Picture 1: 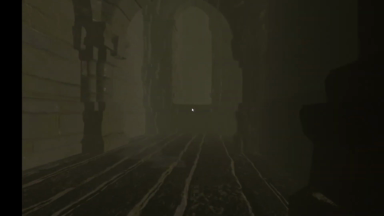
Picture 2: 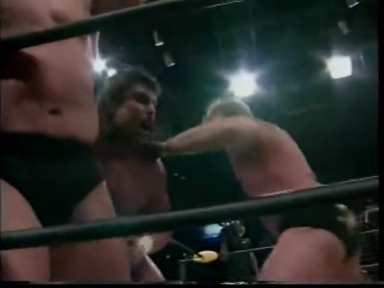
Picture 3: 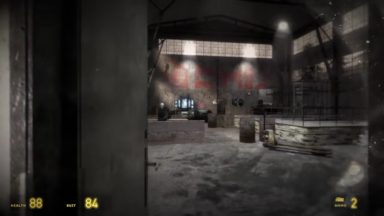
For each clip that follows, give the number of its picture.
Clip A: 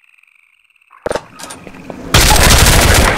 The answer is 3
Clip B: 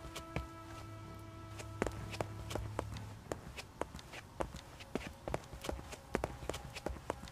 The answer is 1